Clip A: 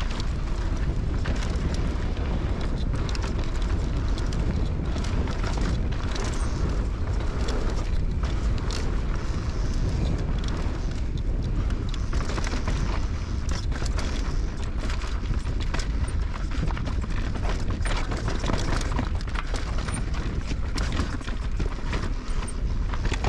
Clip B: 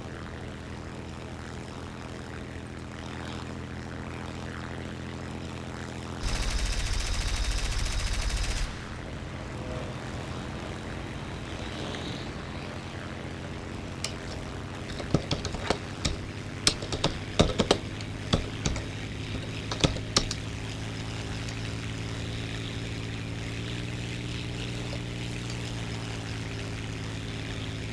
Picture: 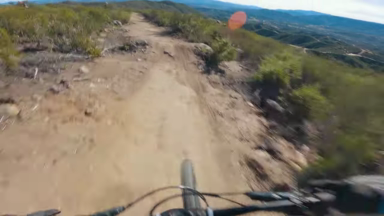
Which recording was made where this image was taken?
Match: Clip A